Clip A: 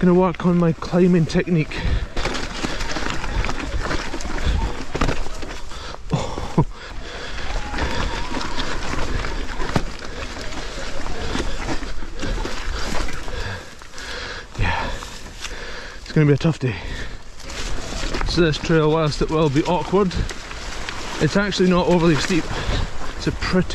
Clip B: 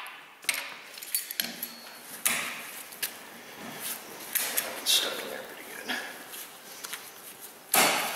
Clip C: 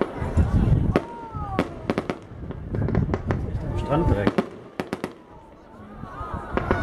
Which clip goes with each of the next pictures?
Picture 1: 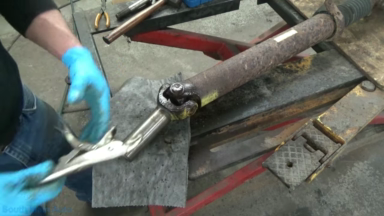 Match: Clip B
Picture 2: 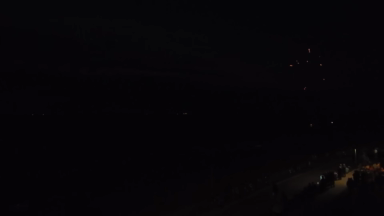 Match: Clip C